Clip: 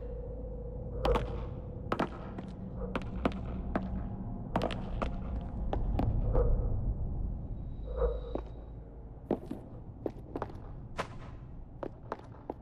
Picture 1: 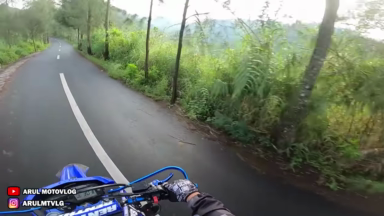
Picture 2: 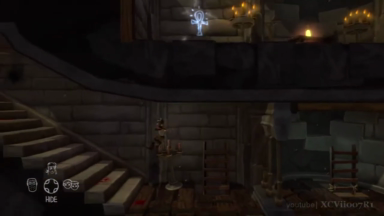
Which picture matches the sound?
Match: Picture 2